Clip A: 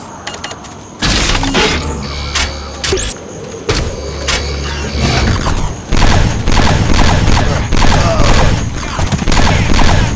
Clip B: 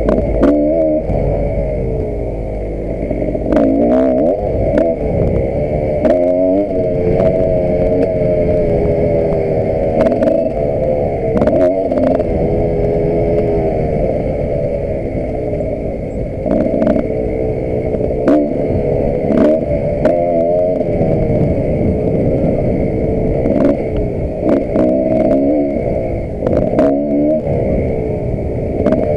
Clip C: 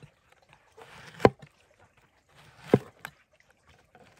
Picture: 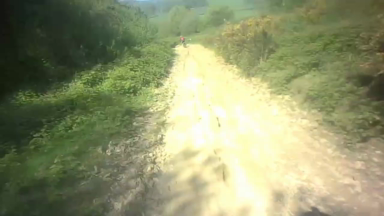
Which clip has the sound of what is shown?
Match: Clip B